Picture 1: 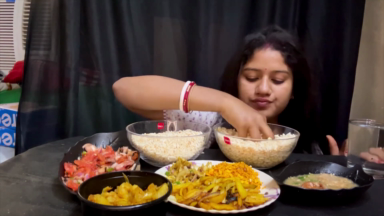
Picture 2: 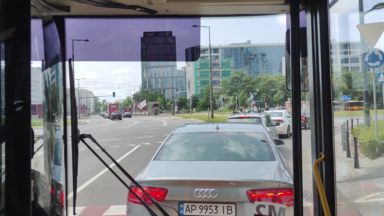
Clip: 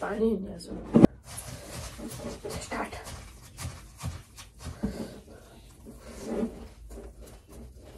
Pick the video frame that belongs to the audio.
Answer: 1